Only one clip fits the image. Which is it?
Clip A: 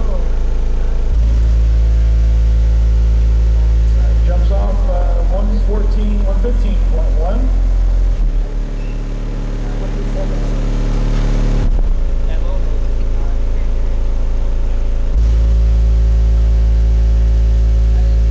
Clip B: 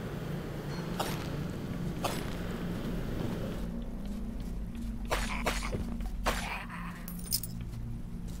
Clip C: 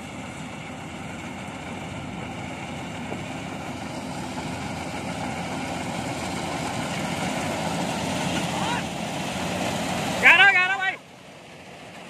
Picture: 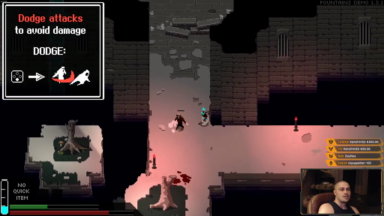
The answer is B